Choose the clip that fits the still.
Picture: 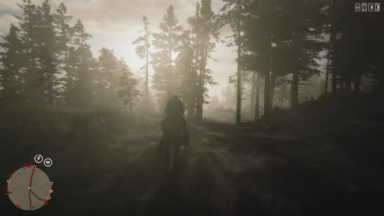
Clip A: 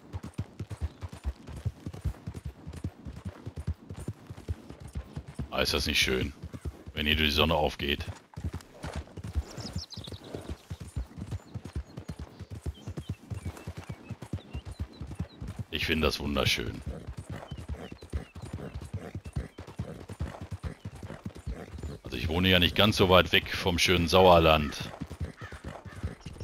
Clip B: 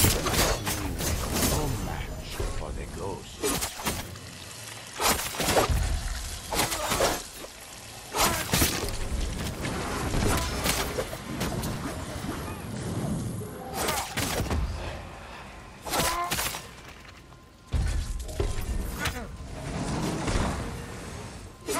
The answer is A